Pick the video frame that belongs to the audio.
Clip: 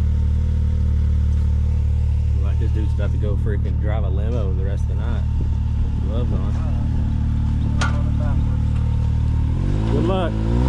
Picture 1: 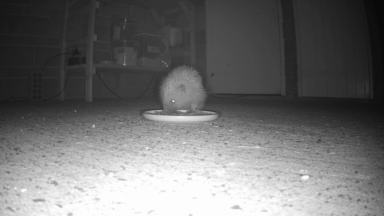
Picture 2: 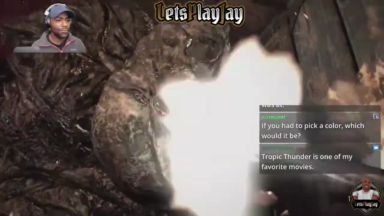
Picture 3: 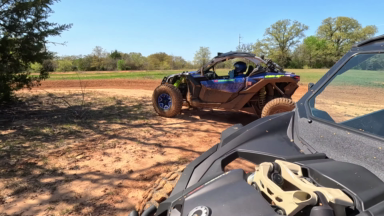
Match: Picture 3